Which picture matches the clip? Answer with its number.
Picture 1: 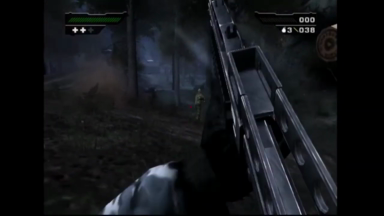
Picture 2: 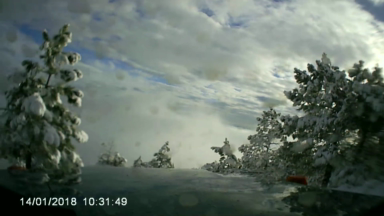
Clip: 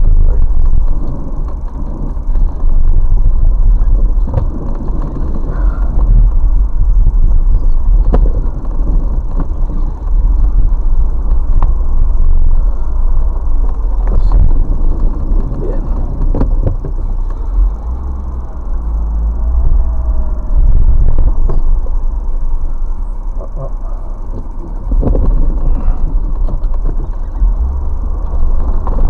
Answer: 2